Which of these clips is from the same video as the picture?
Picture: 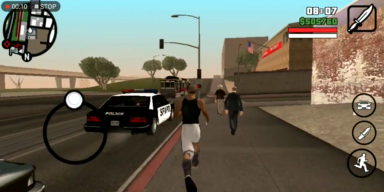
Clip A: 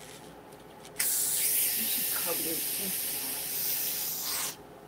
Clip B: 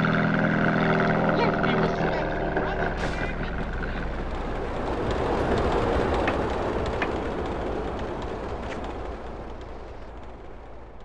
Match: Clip B